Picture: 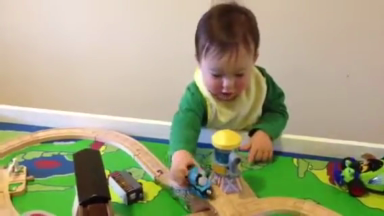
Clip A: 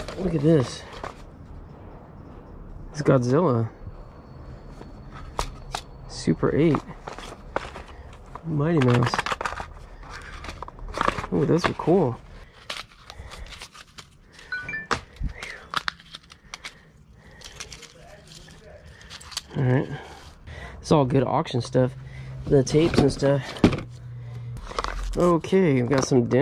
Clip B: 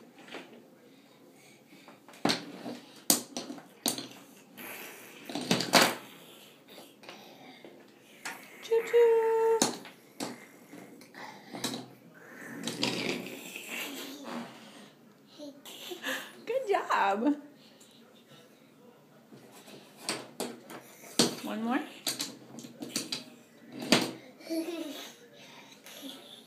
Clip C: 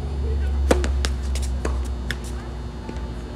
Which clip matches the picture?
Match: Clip B